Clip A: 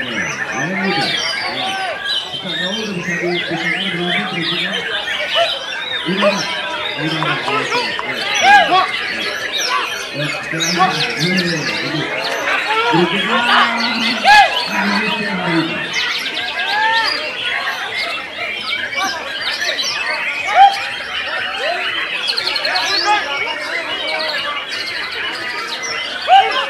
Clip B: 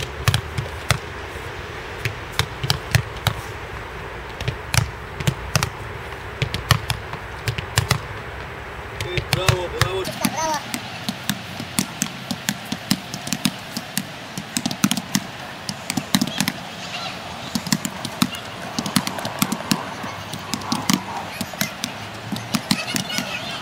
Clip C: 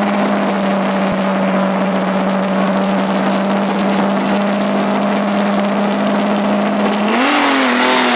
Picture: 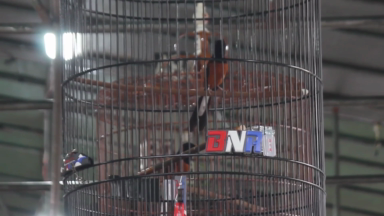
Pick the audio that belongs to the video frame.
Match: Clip A